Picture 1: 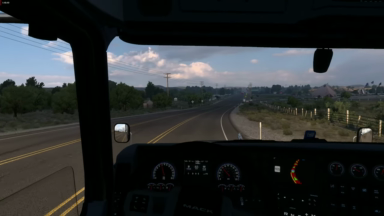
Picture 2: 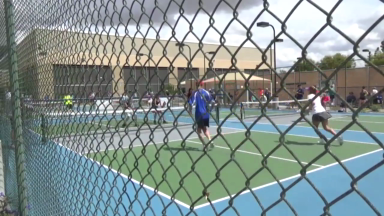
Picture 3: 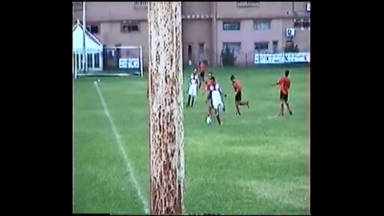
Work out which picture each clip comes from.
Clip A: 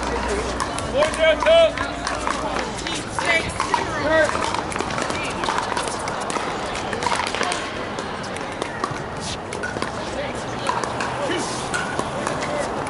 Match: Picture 2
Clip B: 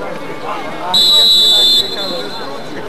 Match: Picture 3